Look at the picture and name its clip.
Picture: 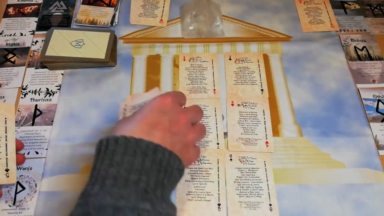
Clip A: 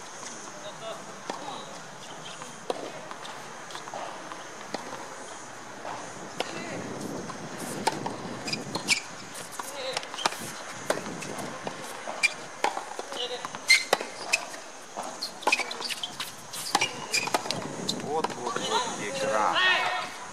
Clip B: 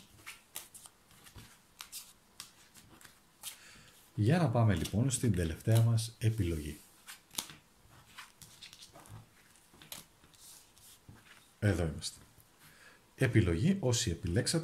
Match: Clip B